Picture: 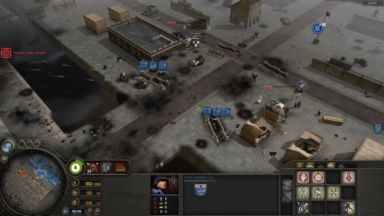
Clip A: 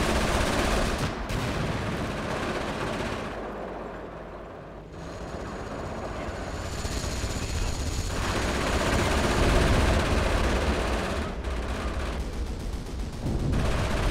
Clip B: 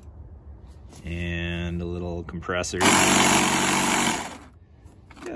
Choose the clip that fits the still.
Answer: A